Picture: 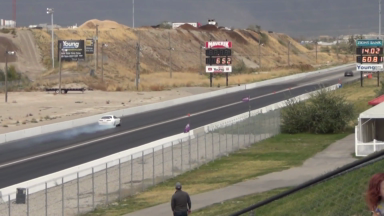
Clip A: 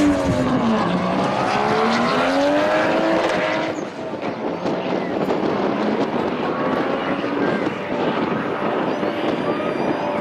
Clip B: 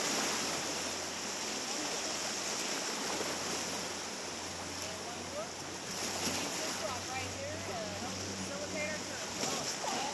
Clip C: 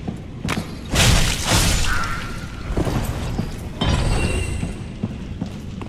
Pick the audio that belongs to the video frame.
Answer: A